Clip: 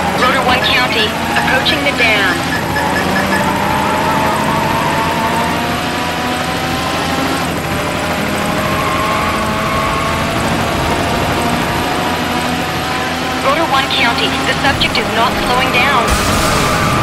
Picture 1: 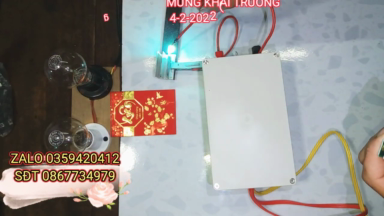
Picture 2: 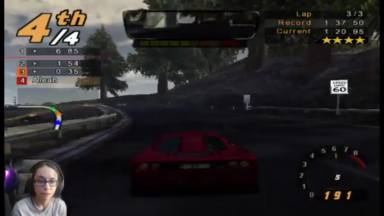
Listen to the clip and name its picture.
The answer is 2